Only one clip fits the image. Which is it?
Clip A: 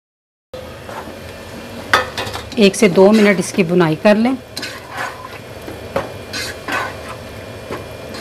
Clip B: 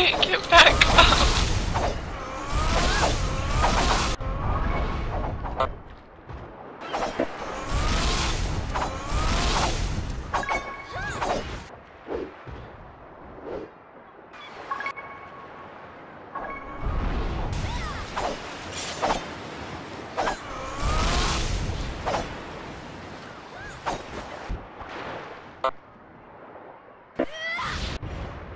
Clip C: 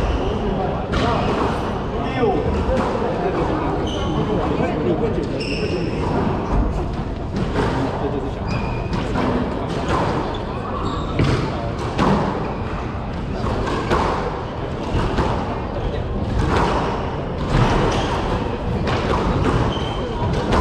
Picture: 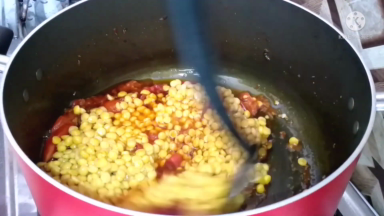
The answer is A